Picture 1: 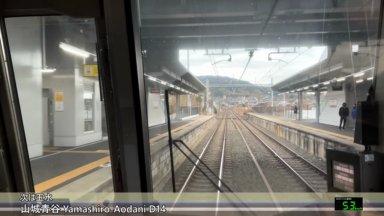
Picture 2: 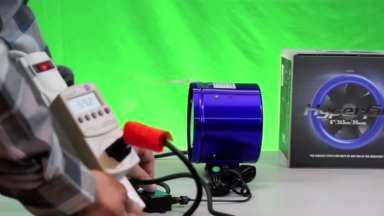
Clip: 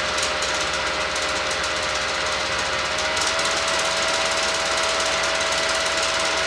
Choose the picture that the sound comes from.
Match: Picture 2